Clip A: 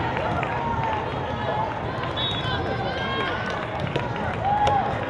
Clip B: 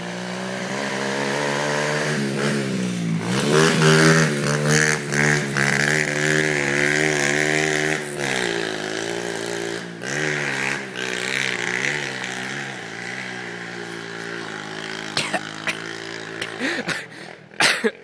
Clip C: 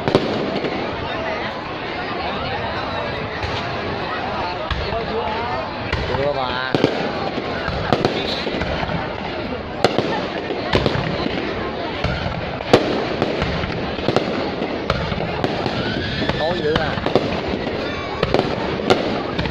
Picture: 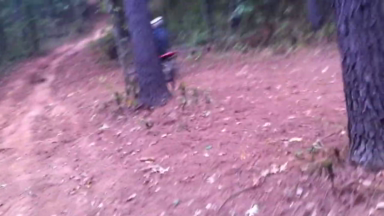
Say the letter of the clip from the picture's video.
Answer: B